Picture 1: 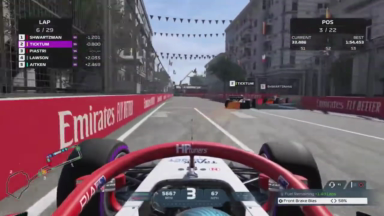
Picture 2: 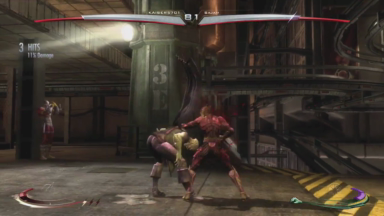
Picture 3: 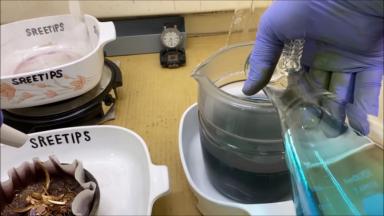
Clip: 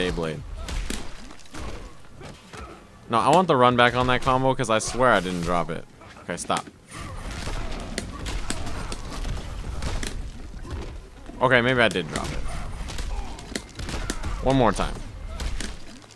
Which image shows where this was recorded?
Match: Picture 2